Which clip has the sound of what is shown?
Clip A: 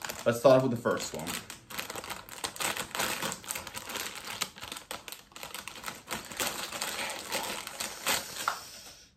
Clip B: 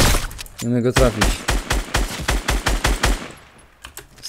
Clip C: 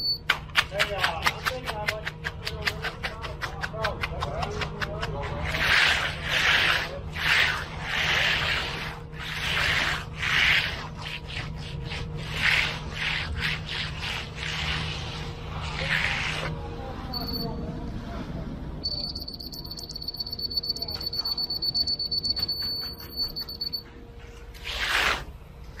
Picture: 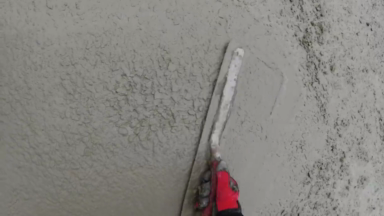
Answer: C